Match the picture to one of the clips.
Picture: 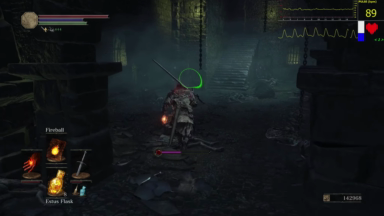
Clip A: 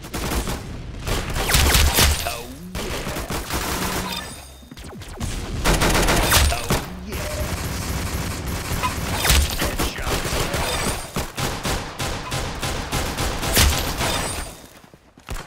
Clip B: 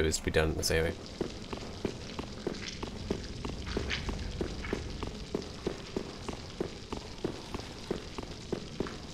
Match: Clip B